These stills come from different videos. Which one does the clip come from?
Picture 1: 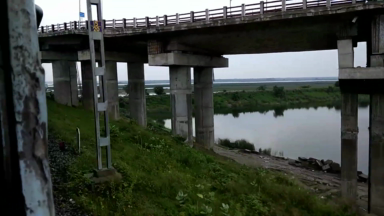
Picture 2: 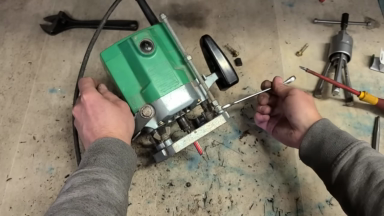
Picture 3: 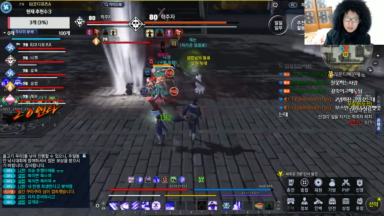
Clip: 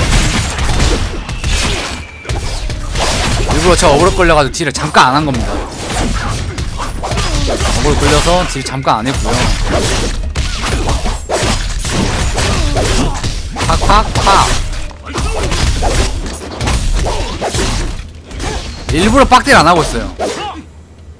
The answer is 3